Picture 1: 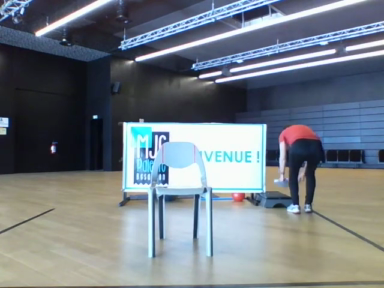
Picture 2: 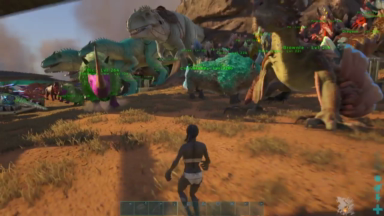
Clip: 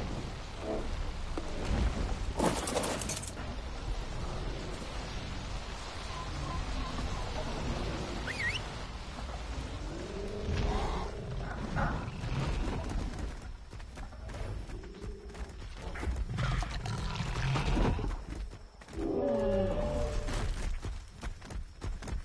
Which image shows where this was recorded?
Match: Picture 2